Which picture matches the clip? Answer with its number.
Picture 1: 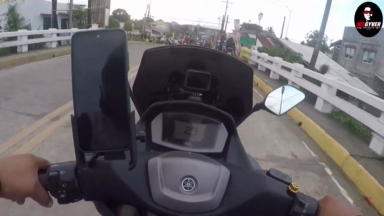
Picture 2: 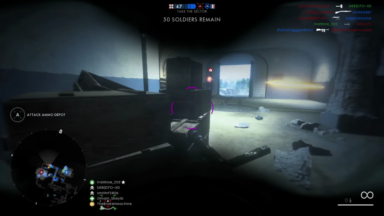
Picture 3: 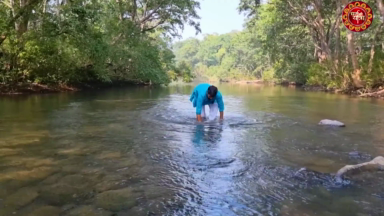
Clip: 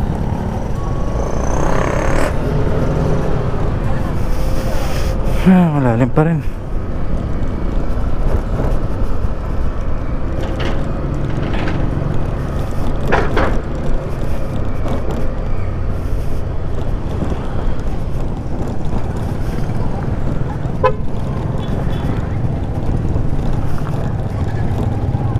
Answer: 1